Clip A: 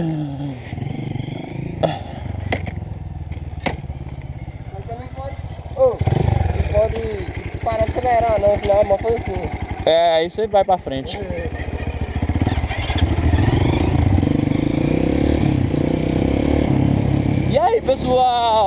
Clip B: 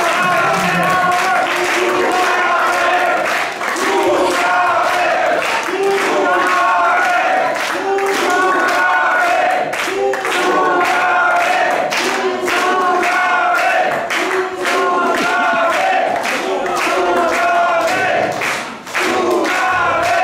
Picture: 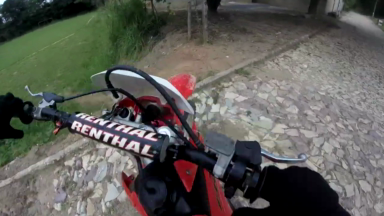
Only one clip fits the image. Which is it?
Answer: A